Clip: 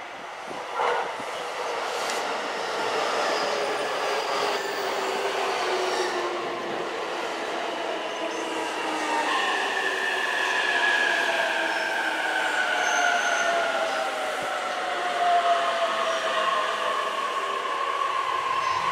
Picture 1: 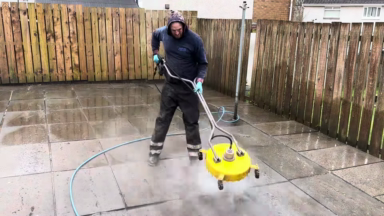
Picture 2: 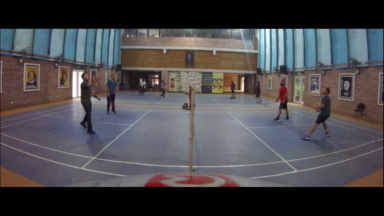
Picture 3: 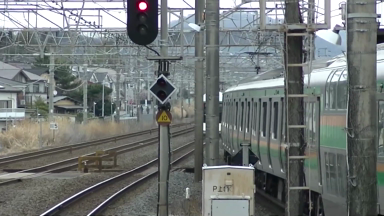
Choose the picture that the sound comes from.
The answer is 3